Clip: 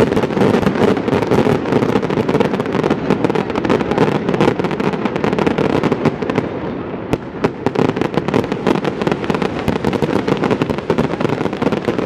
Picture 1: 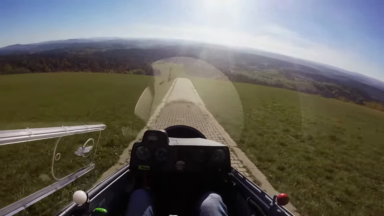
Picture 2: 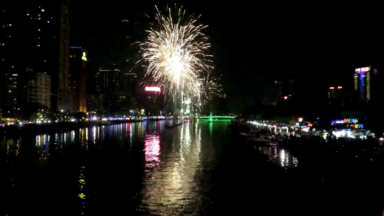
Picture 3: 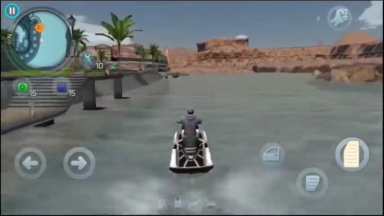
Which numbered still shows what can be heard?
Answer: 2